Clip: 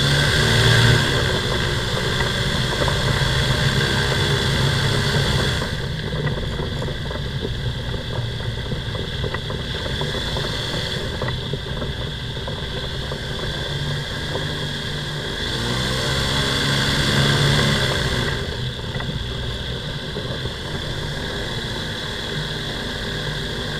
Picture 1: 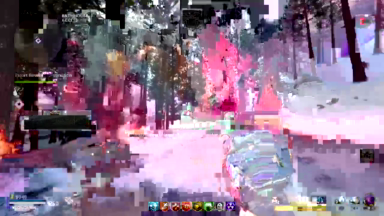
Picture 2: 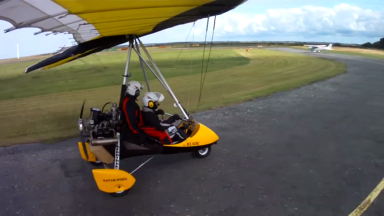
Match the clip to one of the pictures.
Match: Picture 2